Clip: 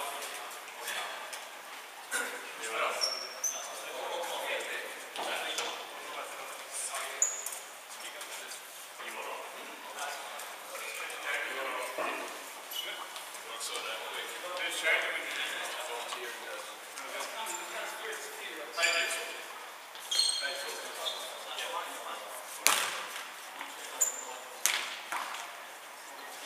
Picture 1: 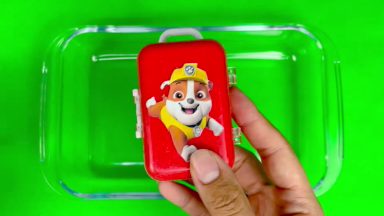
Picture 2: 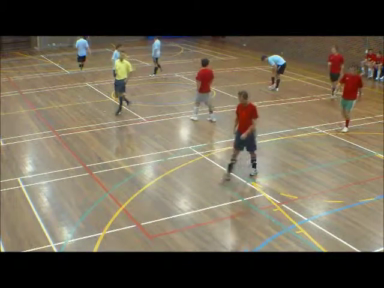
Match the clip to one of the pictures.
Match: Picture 2